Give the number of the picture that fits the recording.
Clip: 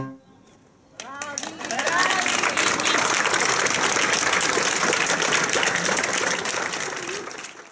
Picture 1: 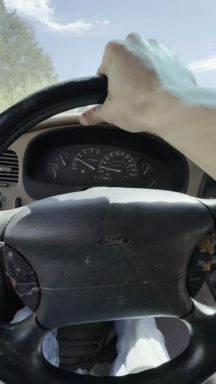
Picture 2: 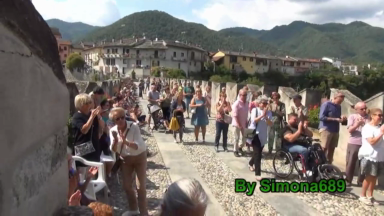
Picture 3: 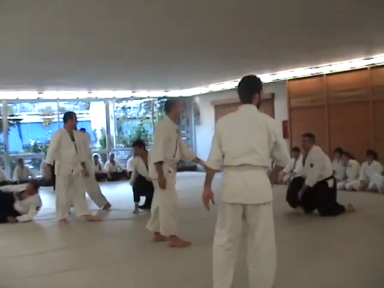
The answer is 2